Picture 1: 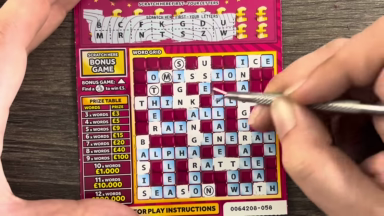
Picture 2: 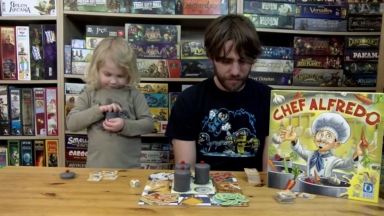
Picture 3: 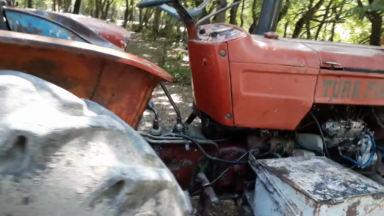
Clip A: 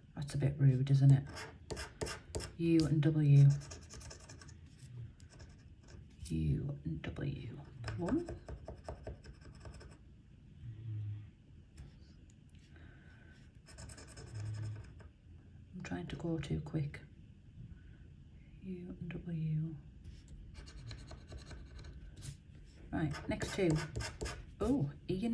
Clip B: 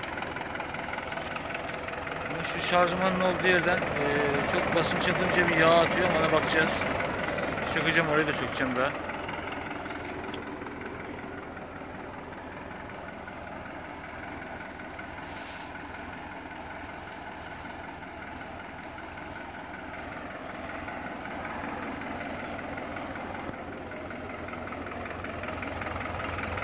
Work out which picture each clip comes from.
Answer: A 1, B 3